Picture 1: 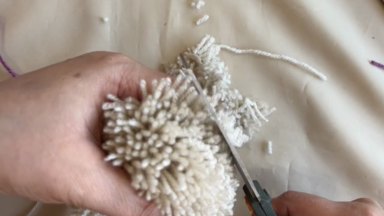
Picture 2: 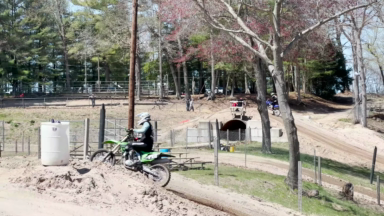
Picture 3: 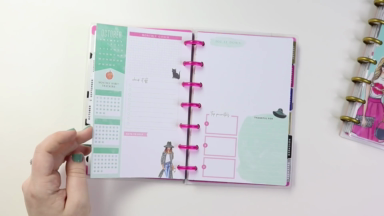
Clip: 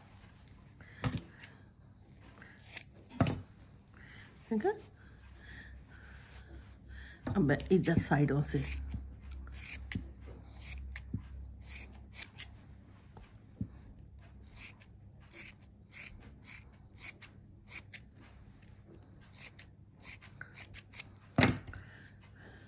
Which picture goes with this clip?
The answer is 1